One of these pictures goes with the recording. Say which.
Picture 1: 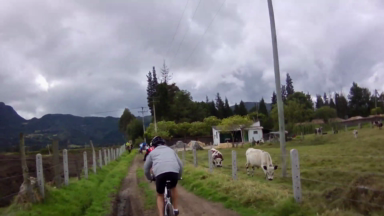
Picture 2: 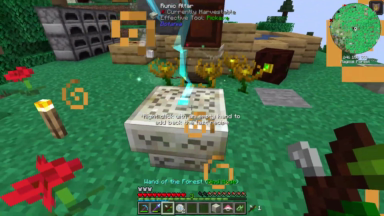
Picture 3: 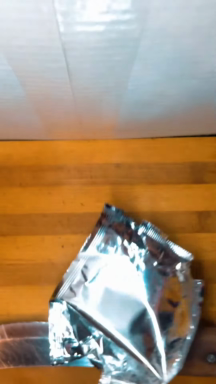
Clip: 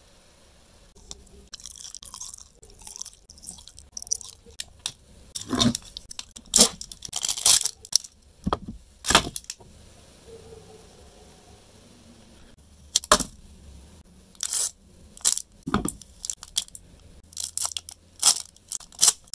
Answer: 3